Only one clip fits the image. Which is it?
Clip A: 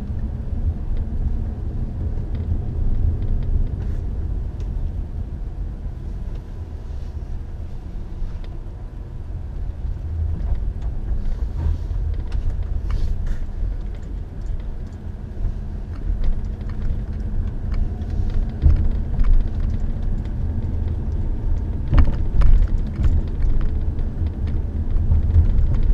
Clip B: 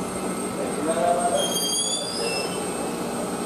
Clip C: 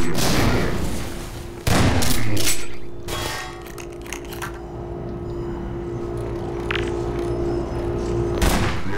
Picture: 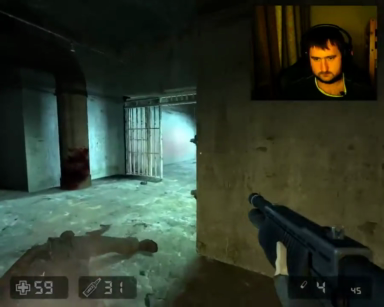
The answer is C